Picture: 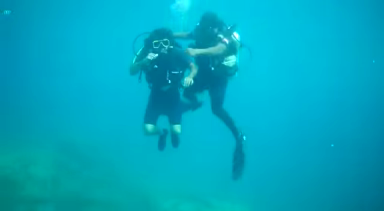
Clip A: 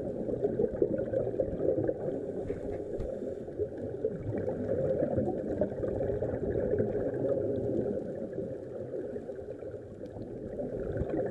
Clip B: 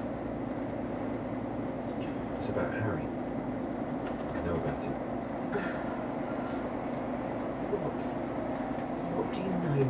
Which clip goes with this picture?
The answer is A